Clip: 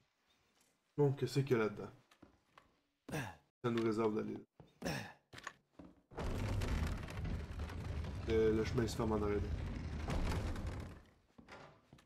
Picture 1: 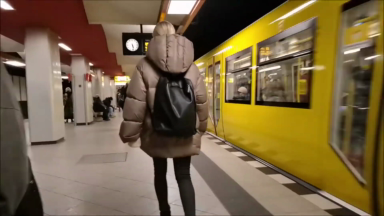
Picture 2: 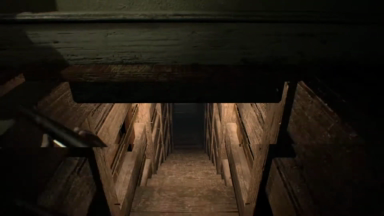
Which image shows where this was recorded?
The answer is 2